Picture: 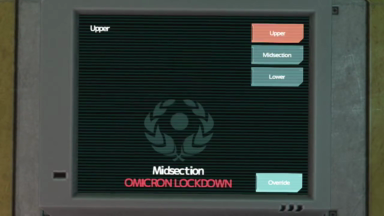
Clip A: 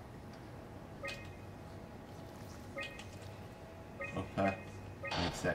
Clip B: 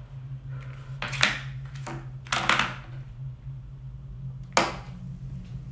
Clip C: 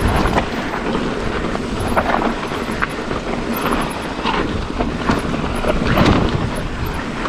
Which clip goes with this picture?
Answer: A